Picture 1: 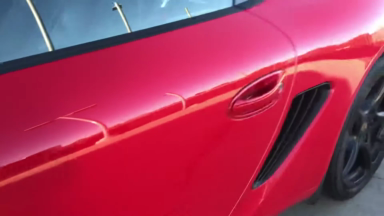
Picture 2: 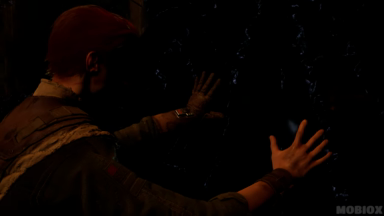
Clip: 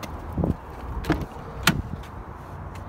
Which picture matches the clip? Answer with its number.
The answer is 1